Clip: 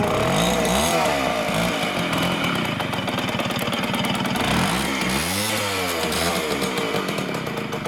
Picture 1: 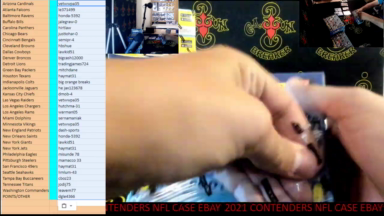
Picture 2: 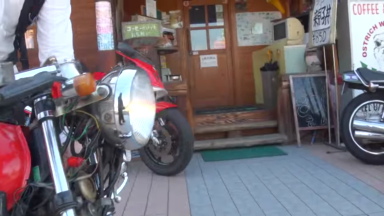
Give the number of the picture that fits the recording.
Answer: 2